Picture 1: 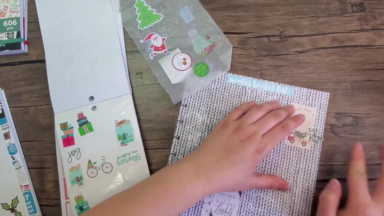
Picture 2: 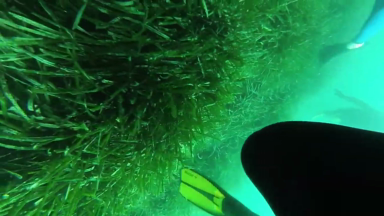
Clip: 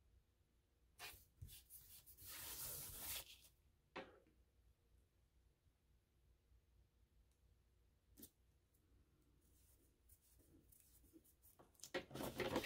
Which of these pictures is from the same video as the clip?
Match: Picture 1